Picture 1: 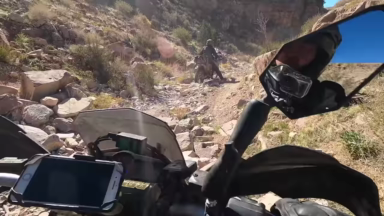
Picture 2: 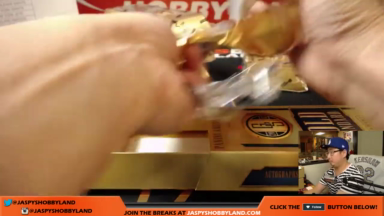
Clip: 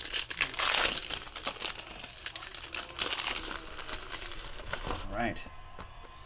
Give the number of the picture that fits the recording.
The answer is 2